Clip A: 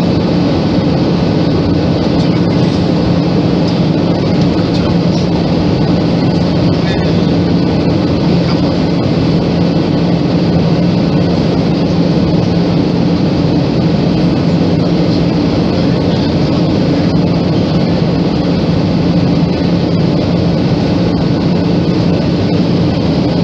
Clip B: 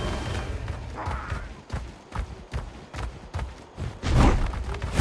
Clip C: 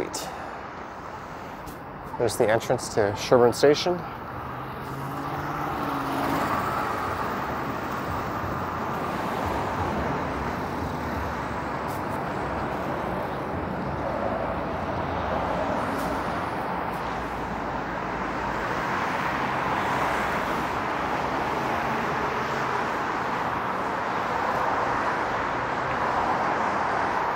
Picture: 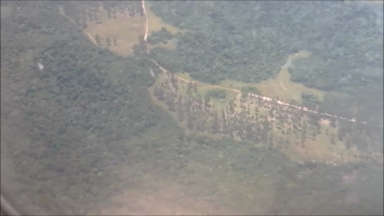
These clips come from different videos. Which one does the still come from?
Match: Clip A